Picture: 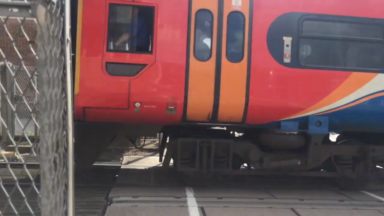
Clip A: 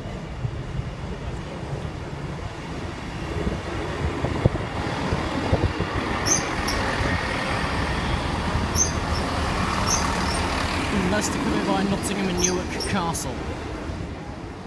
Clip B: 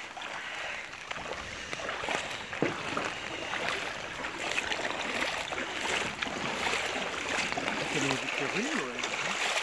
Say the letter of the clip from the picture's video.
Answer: A